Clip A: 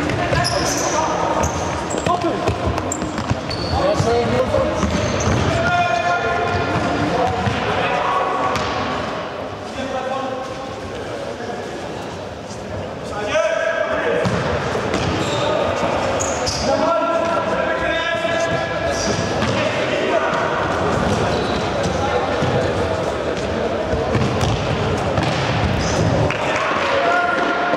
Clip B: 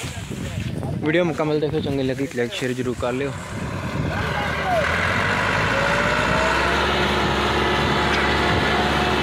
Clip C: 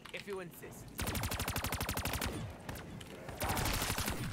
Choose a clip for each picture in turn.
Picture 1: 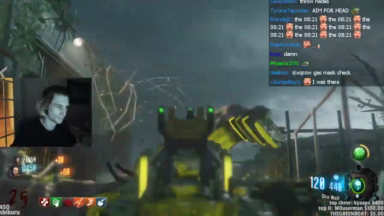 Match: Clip C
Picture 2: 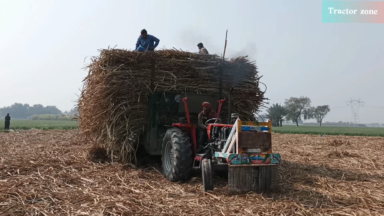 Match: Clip B